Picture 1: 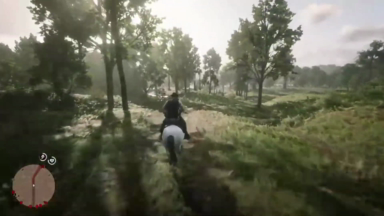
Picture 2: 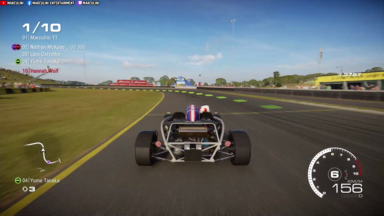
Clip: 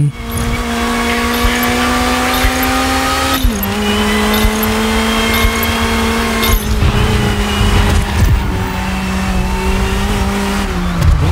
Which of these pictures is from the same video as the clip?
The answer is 2